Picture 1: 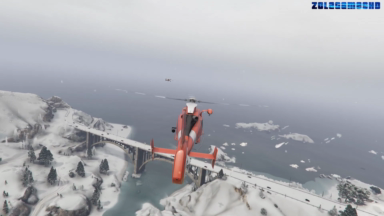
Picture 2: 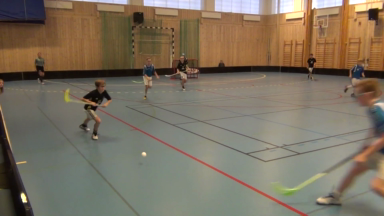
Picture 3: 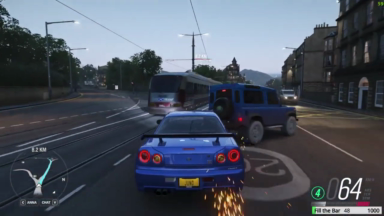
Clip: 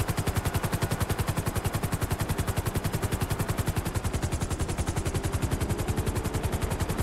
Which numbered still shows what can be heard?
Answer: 1